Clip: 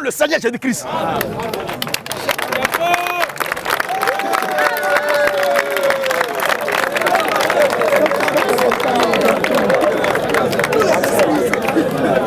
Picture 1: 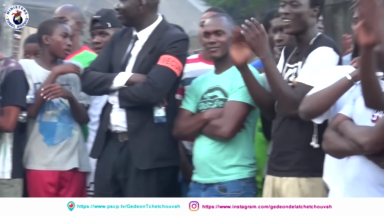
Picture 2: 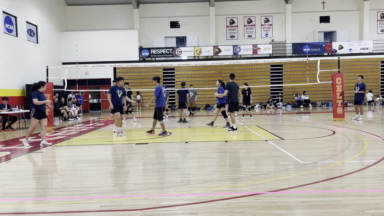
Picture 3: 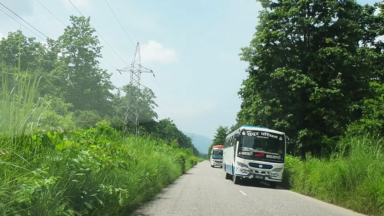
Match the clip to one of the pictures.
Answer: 1